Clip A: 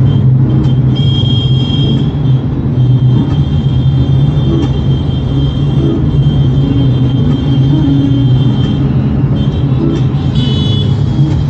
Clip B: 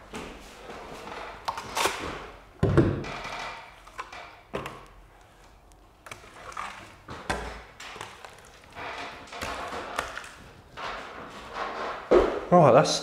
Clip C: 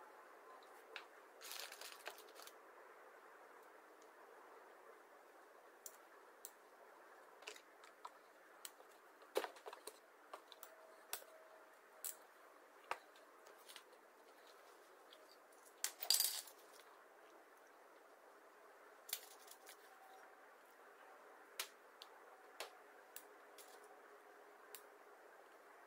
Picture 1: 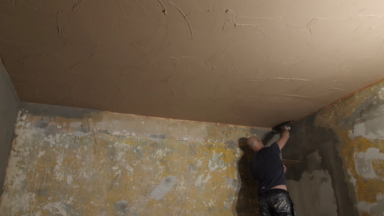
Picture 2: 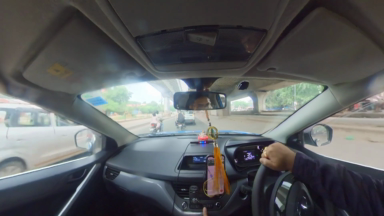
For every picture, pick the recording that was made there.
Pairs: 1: B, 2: A